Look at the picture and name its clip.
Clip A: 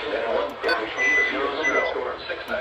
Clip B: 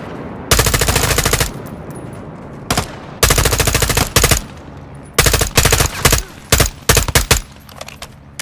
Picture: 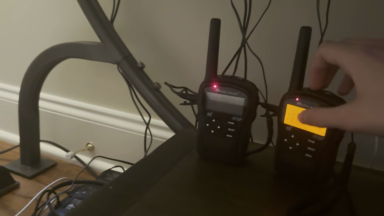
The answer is A